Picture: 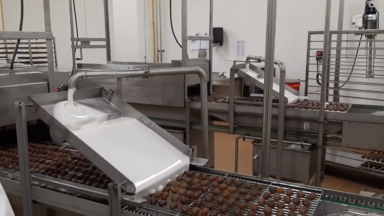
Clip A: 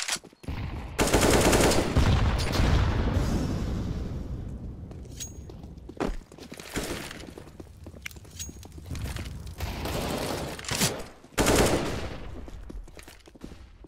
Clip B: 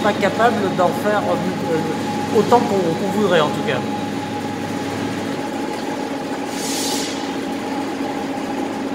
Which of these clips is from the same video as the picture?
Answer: B